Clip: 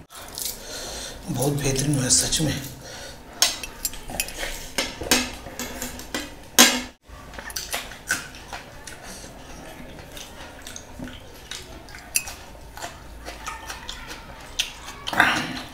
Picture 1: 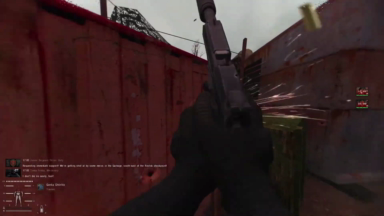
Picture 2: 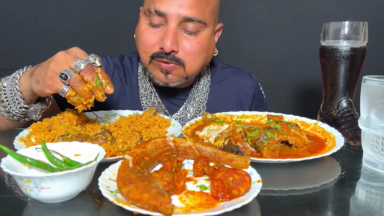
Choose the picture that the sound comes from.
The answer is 2